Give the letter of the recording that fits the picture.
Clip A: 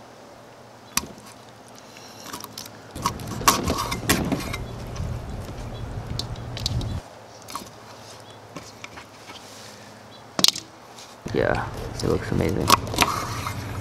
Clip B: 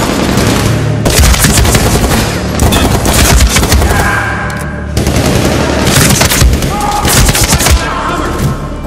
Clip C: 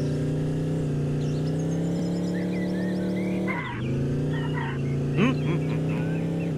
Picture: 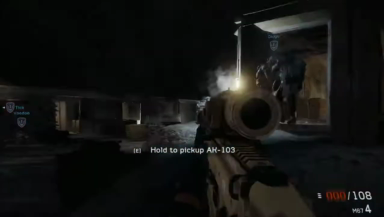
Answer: B